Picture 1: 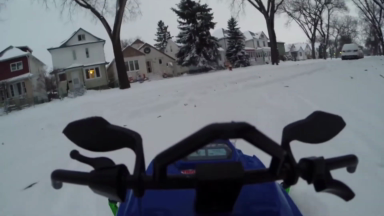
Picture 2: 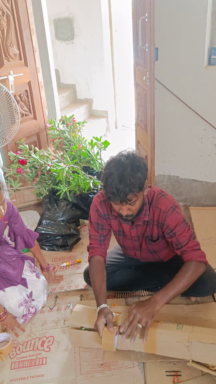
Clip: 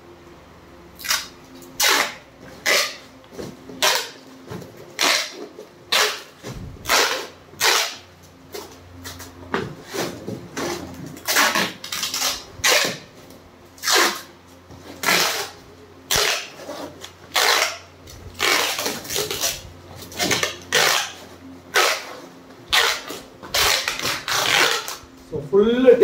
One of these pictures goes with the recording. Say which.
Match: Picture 2